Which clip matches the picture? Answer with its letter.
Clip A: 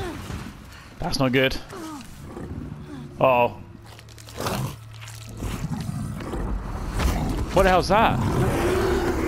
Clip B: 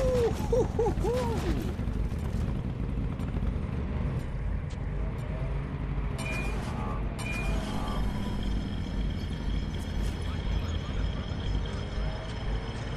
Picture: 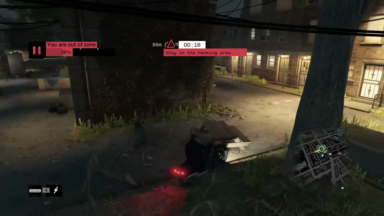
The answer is B